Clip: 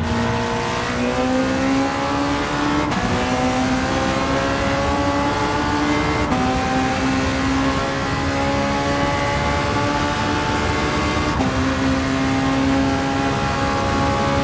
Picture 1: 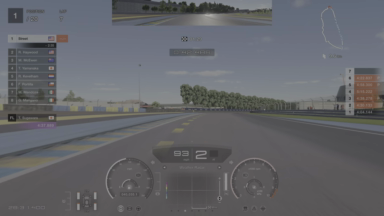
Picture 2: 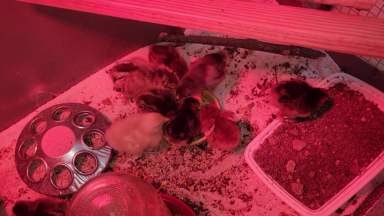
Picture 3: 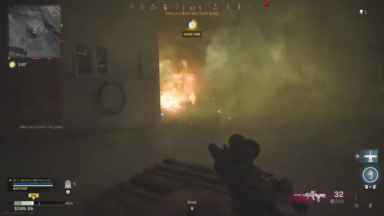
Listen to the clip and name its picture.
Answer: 1